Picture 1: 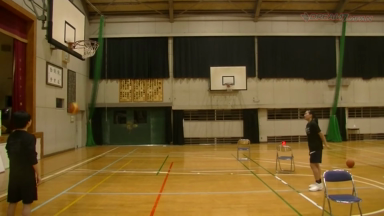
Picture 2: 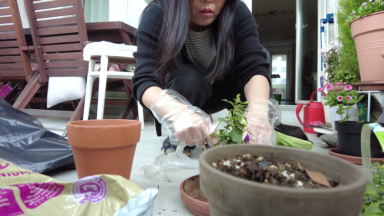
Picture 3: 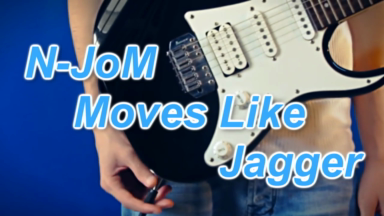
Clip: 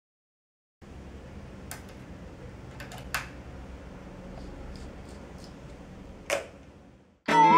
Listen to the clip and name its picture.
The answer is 3